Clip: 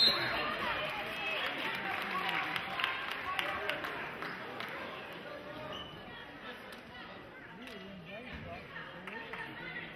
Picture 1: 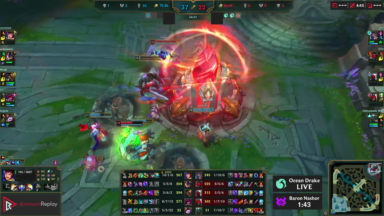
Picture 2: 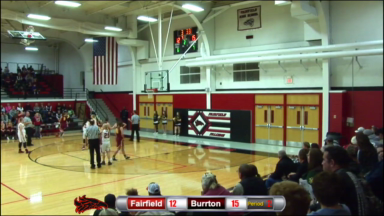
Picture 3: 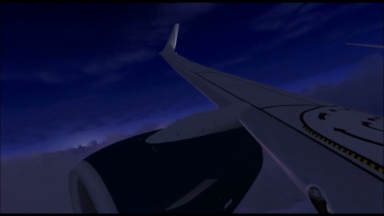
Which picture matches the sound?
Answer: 2